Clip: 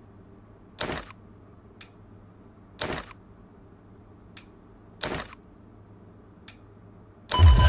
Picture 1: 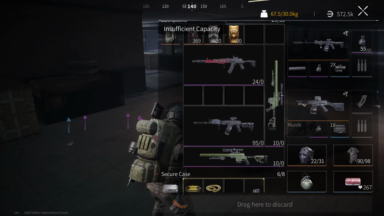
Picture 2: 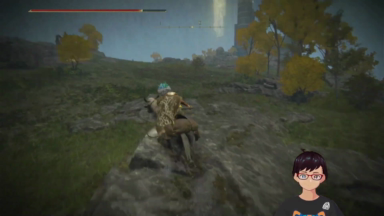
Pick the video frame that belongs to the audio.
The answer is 1